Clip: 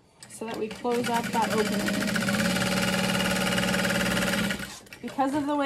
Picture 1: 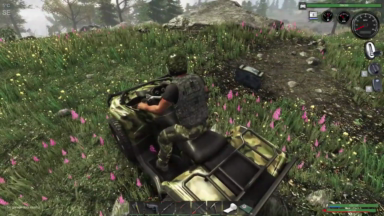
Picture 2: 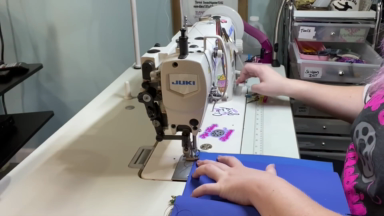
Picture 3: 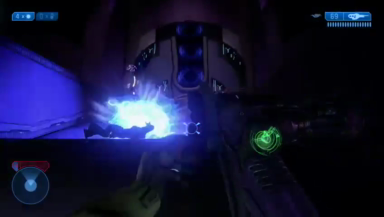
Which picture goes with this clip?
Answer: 2